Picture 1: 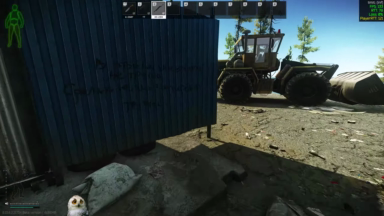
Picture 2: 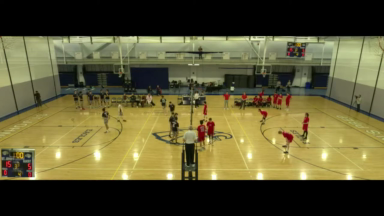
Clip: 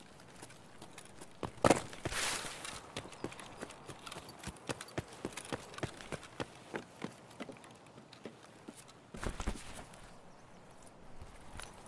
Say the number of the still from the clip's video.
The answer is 1